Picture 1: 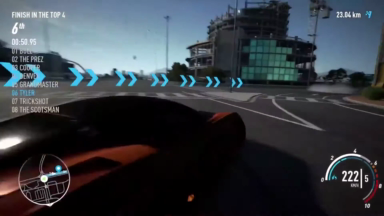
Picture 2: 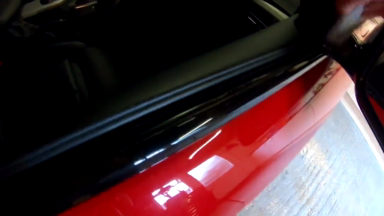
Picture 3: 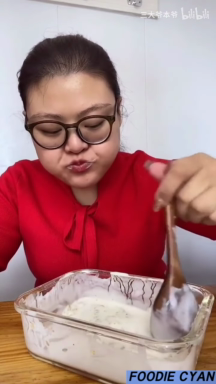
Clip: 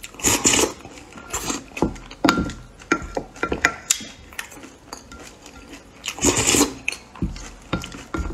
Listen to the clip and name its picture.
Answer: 3